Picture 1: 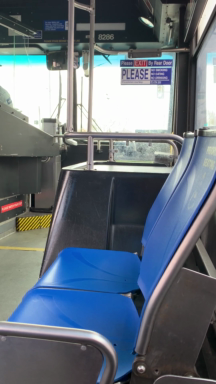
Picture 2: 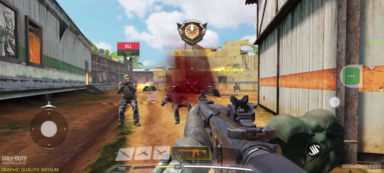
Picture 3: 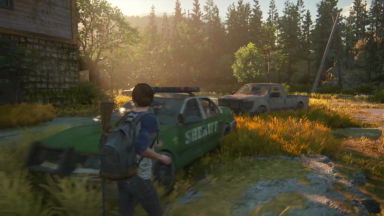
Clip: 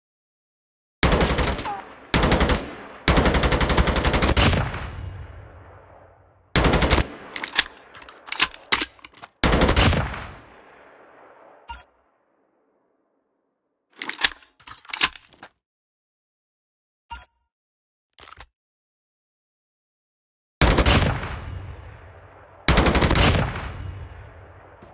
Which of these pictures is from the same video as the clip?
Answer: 2